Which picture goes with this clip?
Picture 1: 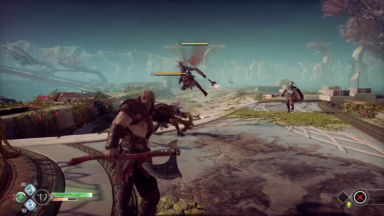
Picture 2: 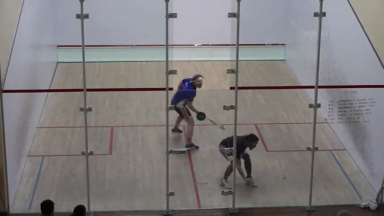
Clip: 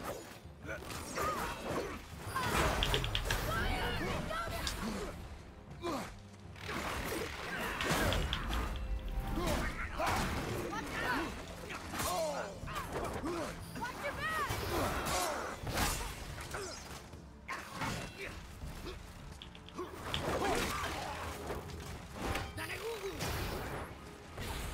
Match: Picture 1